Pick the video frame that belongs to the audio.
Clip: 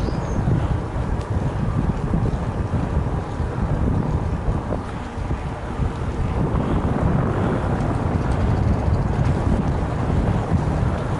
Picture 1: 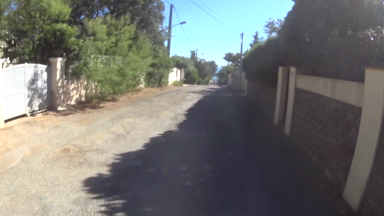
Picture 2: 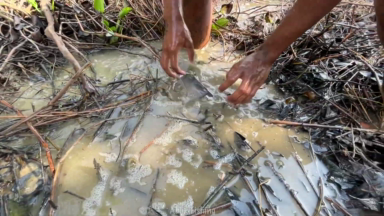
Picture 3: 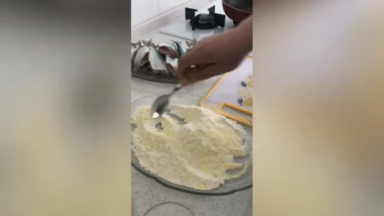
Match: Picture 1